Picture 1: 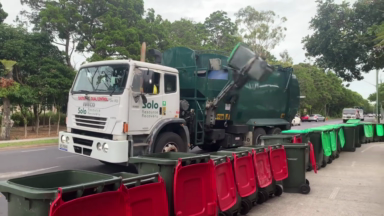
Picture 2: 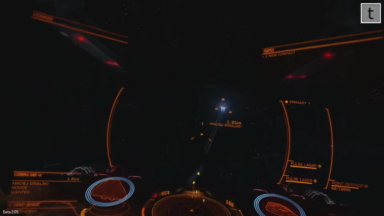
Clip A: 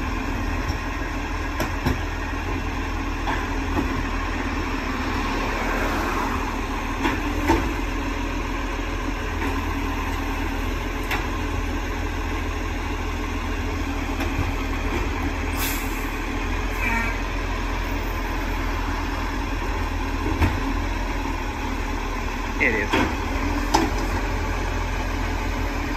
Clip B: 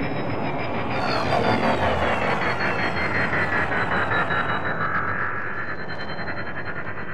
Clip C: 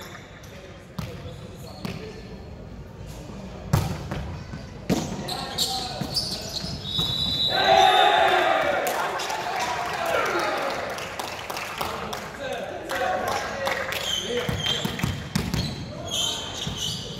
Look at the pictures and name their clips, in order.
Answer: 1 A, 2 B